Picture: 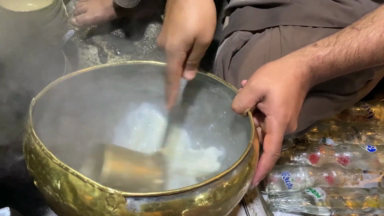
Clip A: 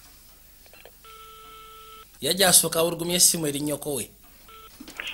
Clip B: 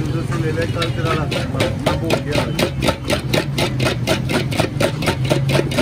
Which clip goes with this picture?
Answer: B